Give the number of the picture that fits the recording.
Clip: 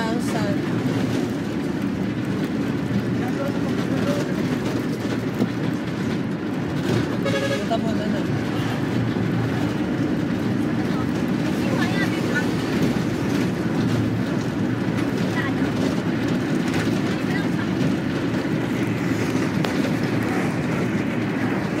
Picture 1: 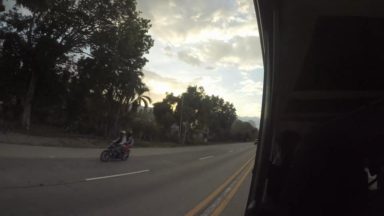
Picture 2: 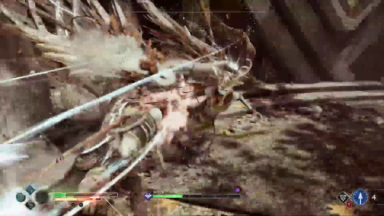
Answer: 1